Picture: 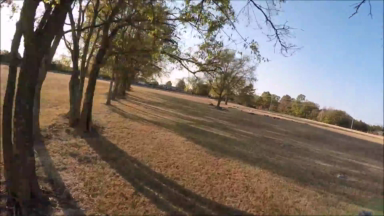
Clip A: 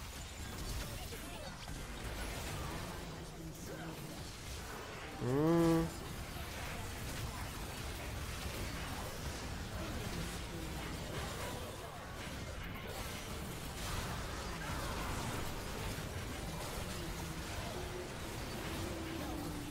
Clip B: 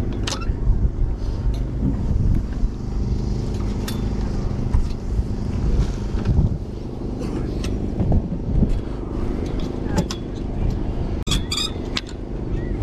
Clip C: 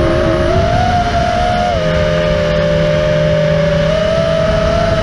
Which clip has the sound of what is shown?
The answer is C